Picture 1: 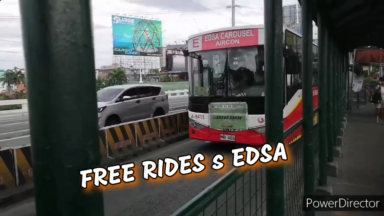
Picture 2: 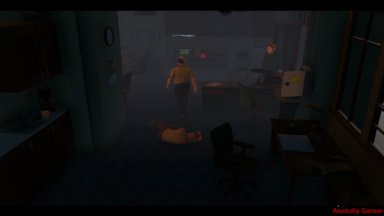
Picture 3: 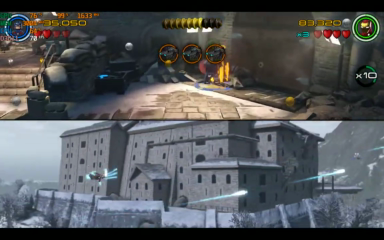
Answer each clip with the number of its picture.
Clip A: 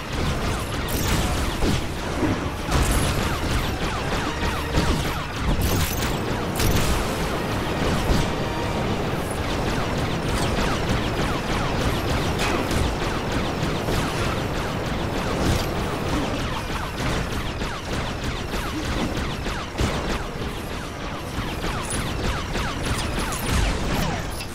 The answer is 3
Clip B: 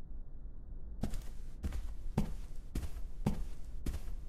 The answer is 2